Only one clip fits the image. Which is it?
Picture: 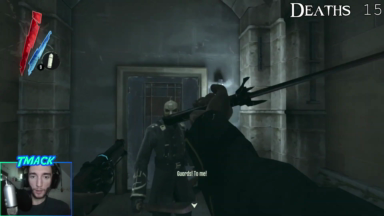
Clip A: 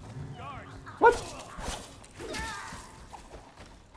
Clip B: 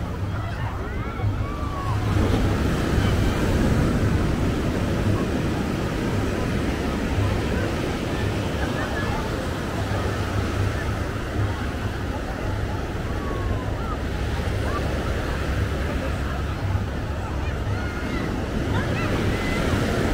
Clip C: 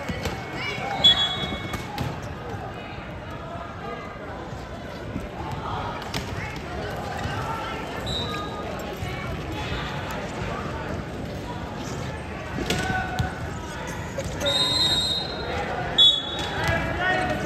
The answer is A